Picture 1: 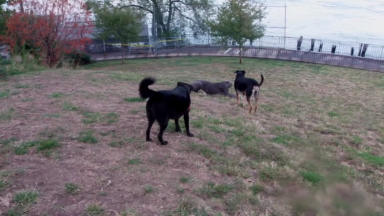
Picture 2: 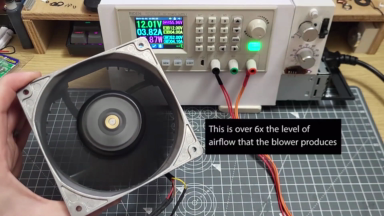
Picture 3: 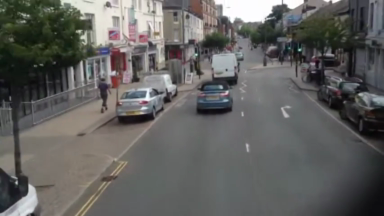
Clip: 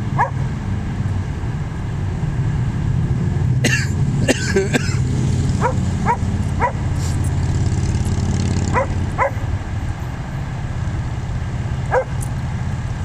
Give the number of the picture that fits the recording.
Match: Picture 1